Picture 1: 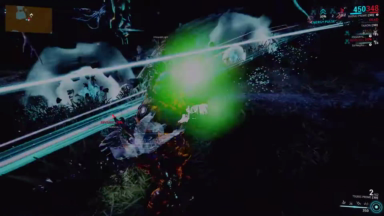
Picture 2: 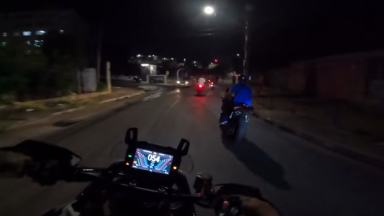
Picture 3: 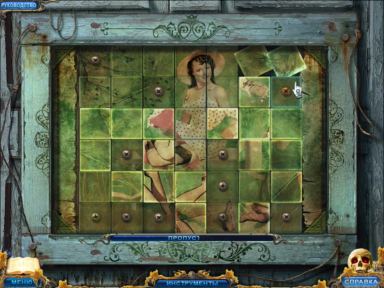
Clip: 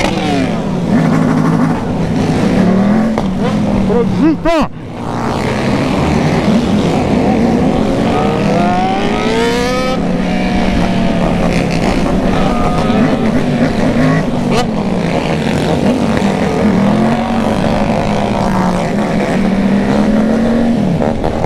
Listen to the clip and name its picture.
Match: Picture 2